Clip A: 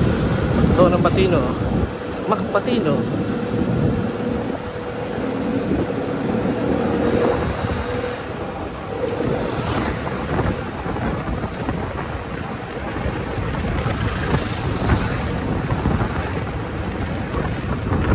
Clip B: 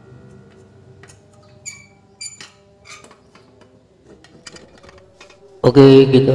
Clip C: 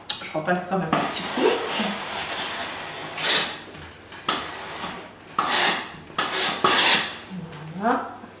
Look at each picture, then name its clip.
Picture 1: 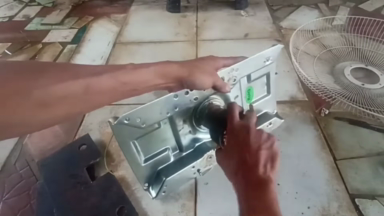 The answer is B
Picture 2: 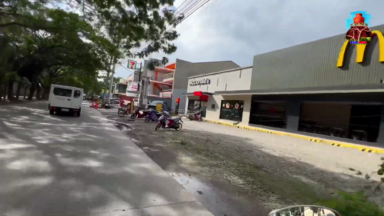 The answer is A